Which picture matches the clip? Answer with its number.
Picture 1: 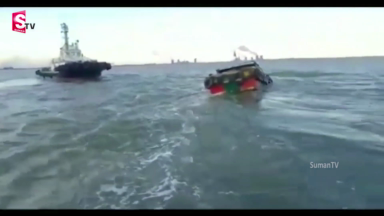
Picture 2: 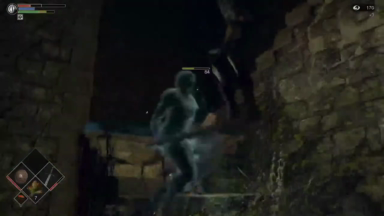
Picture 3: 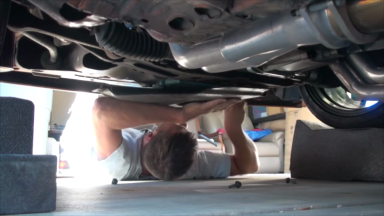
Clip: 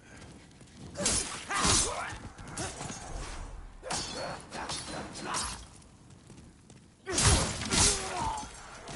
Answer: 2